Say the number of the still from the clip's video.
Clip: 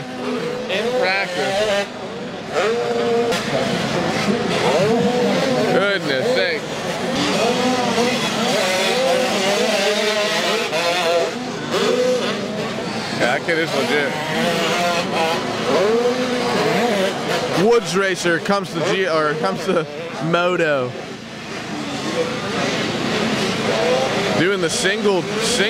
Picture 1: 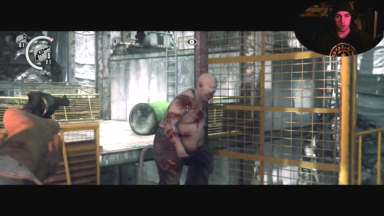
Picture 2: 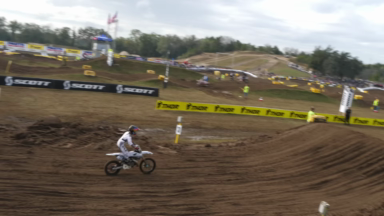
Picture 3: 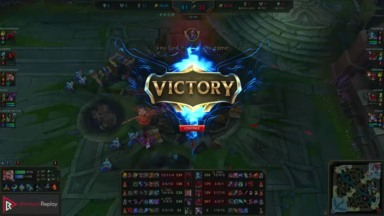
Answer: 2